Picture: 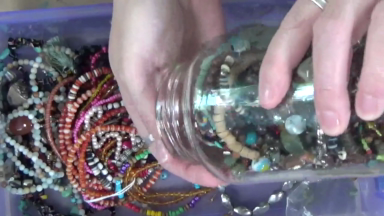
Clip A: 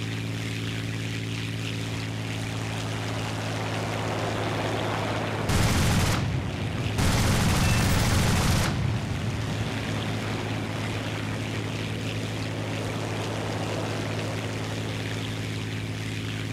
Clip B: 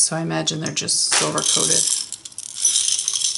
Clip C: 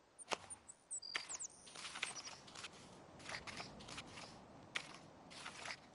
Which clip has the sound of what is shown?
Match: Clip B